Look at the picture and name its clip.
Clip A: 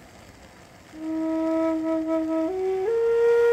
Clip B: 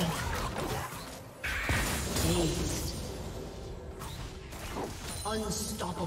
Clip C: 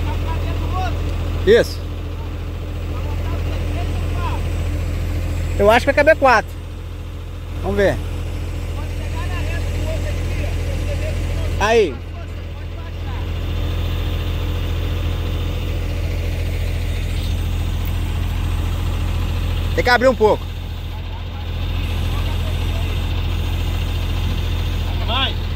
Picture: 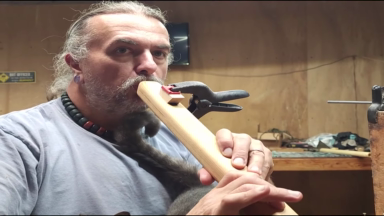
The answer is A